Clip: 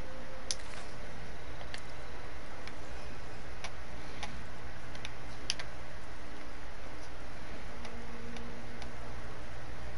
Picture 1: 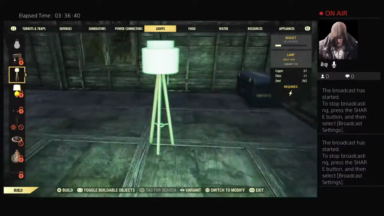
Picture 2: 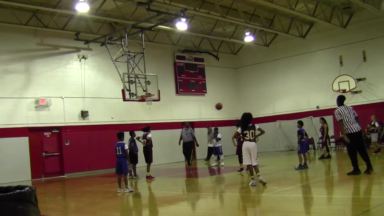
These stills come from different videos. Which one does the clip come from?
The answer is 1